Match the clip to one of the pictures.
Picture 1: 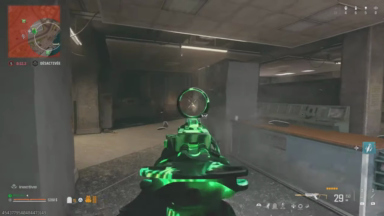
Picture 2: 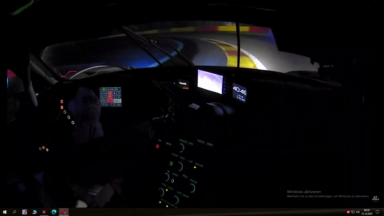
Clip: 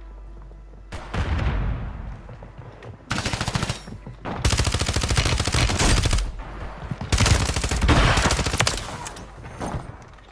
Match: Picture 1